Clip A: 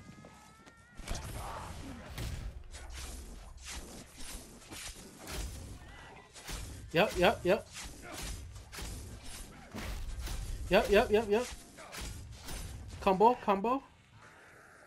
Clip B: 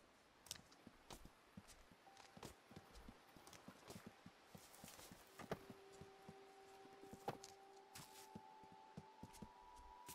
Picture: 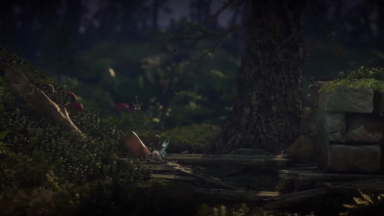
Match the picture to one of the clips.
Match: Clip B